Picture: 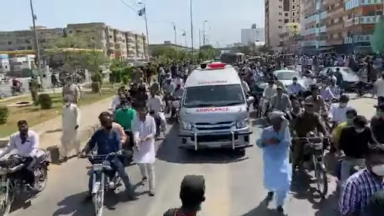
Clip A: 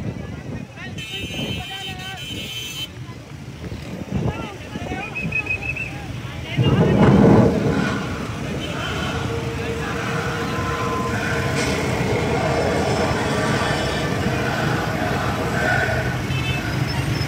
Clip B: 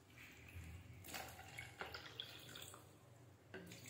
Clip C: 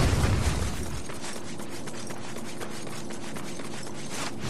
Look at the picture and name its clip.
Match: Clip A